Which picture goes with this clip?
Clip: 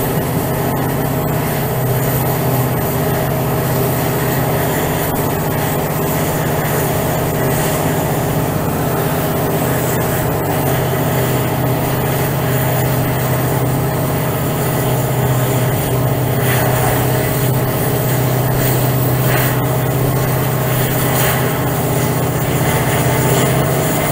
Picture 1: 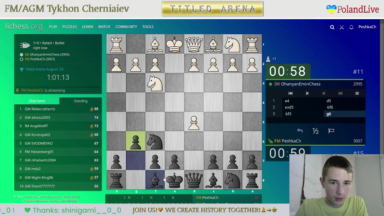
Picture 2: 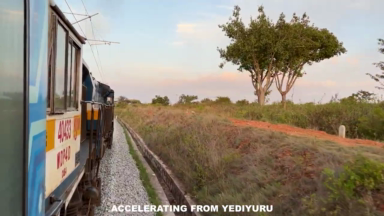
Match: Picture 2